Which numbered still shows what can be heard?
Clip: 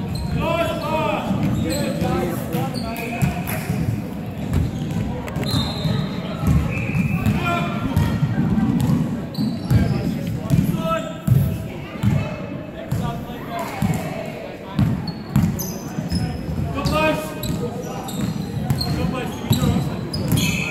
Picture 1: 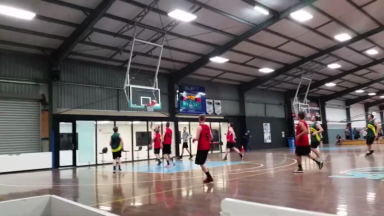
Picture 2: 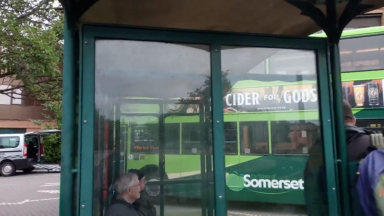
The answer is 1